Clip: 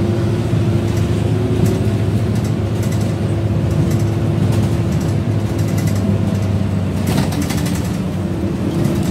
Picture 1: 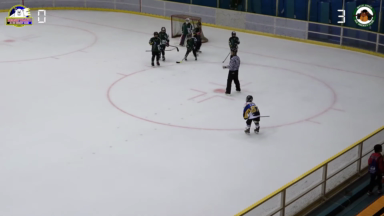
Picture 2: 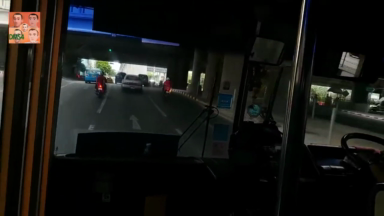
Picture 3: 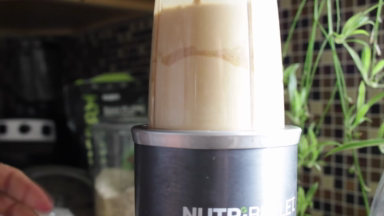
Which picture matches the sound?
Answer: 2